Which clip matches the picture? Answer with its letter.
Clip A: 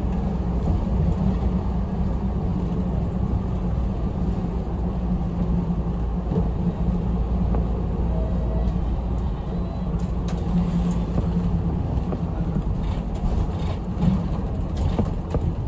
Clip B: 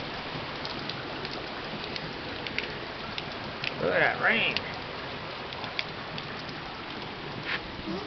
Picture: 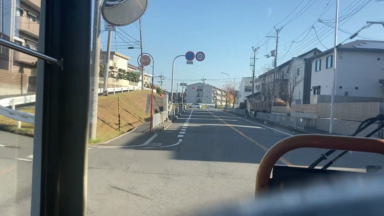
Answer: A